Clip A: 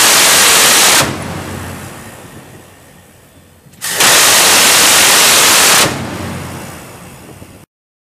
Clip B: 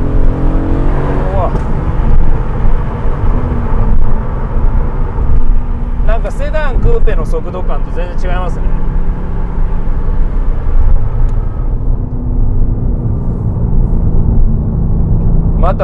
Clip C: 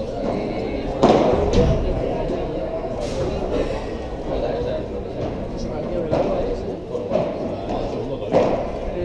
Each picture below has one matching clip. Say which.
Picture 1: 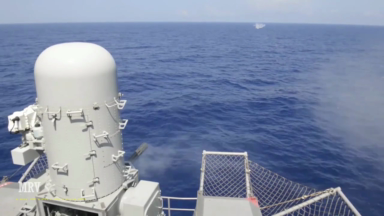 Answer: A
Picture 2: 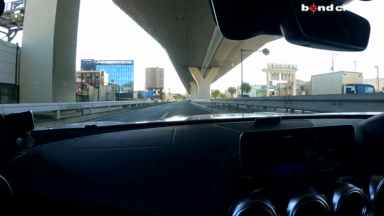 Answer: B